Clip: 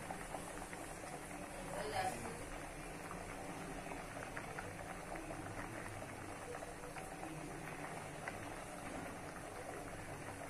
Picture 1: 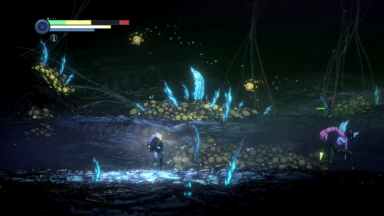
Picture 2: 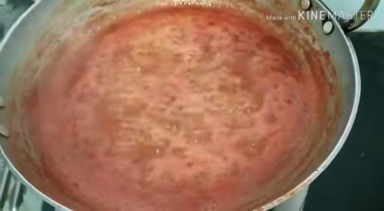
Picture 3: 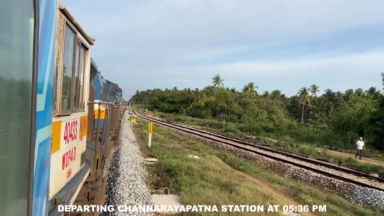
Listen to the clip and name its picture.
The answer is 2